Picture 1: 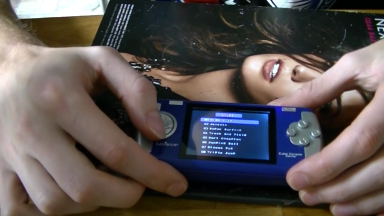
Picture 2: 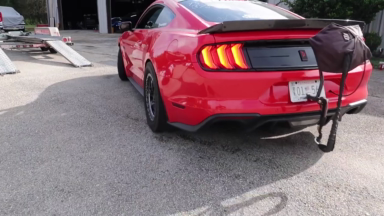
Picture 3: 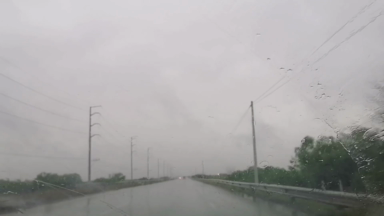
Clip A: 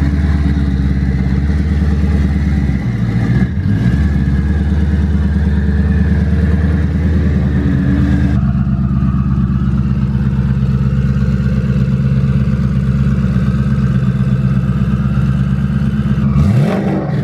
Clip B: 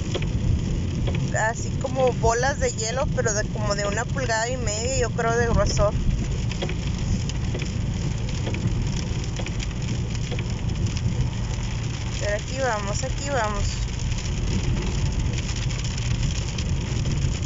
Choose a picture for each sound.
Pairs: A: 2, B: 3